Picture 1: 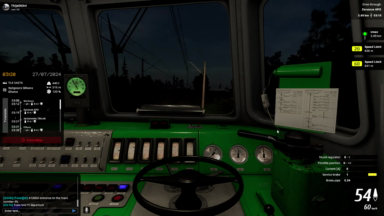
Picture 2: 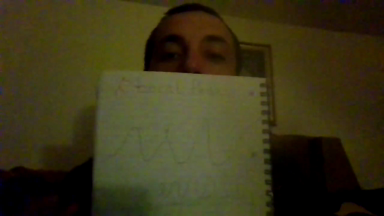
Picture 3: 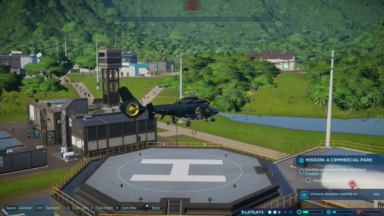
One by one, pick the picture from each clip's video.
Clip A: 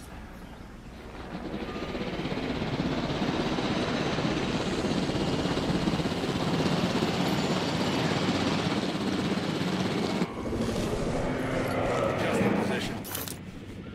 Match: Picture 3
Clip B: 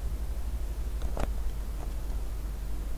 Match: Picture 2